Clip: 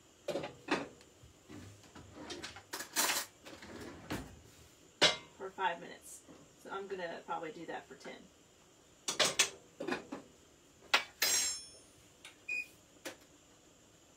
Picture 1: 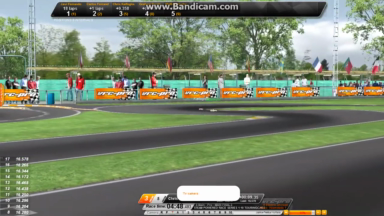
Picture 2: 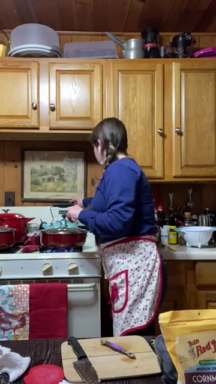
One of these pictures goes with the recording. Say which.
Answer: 2